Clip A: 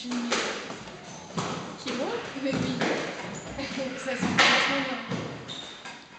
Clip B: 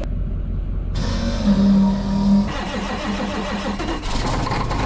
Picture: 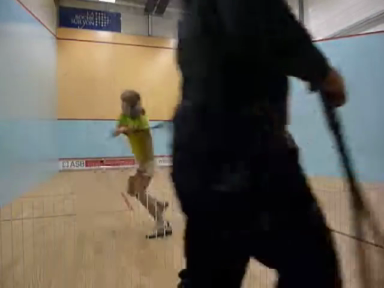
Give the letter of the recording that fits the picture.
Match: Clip A